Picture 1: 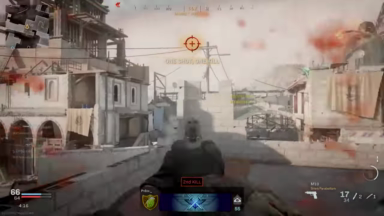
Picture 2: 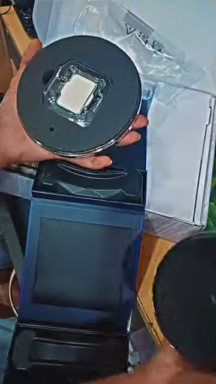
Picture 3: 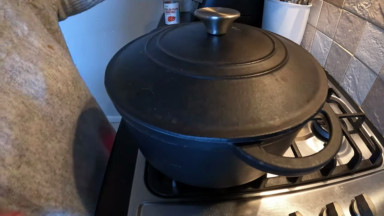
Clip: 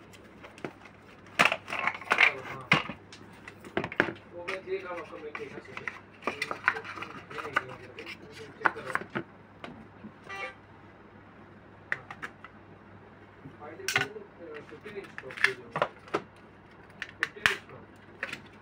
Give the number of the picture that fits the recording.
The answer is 2